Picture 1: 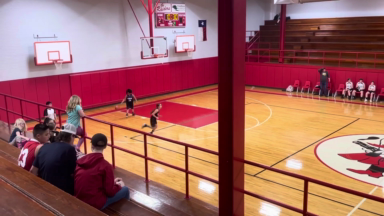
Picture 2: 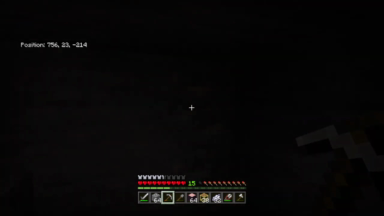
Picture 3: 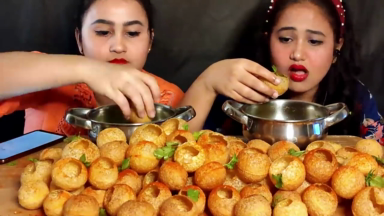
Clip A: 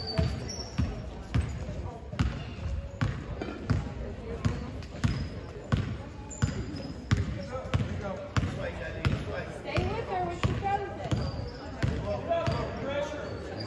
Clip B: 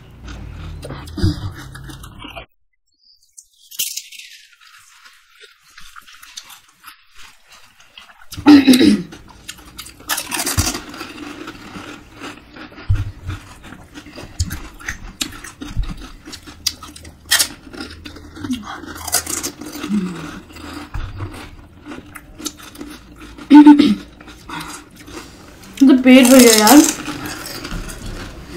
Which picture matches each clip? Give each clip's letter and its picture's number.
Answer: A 1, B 3